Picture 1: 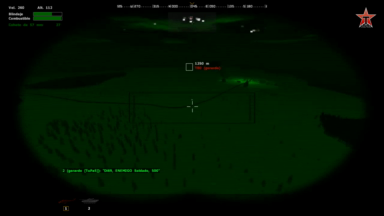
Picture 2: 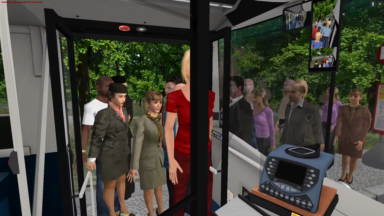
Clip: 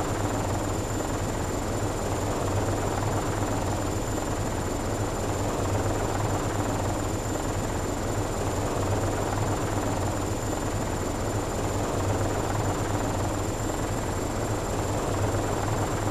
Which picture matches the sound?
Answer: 1